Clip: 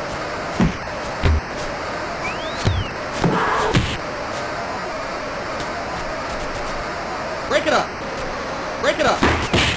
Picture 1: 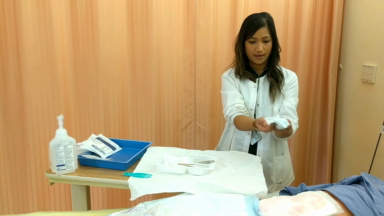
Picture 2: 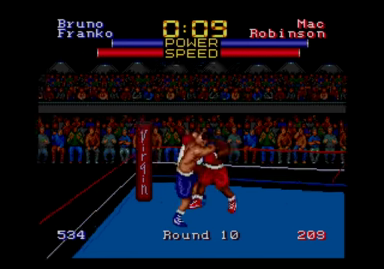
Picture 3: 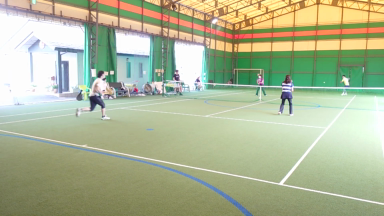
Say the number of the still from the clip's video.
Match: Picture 2